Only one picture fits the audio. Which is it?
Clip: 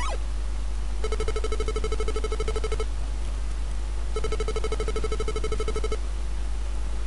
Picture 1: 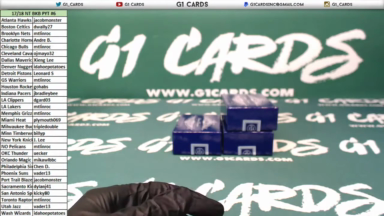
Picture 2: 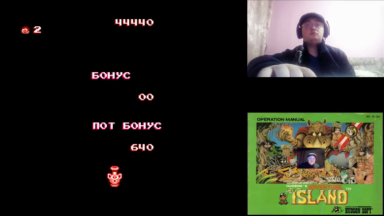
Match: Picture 2